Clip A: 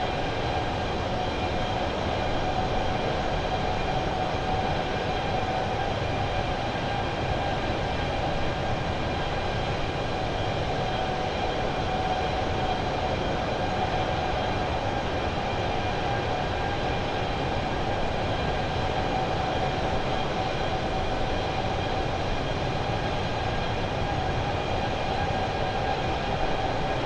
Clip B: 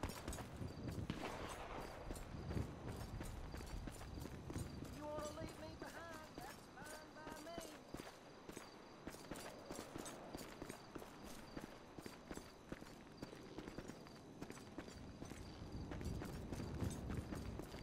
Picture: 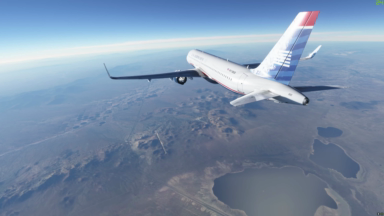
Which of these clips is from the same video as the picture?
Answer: A